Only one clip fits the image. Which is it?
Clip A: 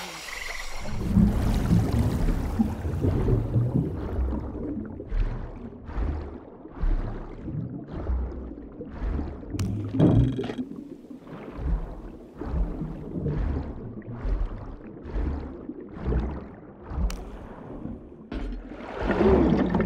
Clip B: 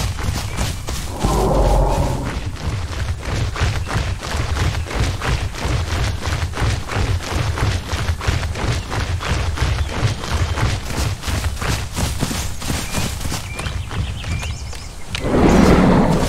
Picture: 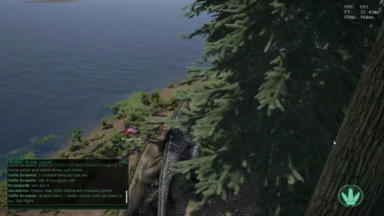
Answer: B